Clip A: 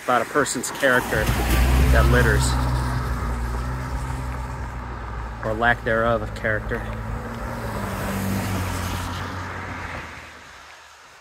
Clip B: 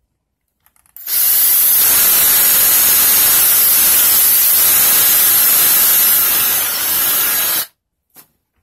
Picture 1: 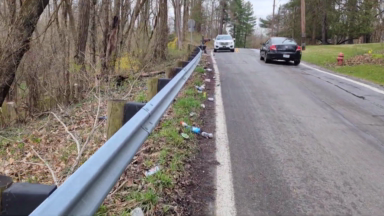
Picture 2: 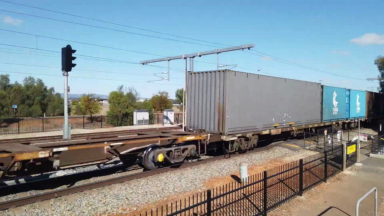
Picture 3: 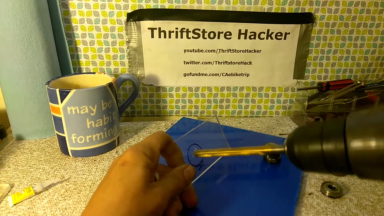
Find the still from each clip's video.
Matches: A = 1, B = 3